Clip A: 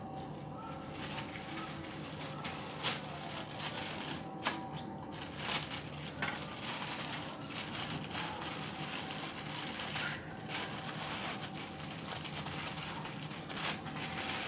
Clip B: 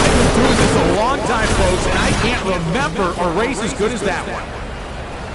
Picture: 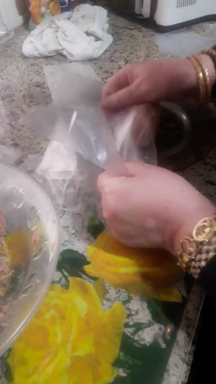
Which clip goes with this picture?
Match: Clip A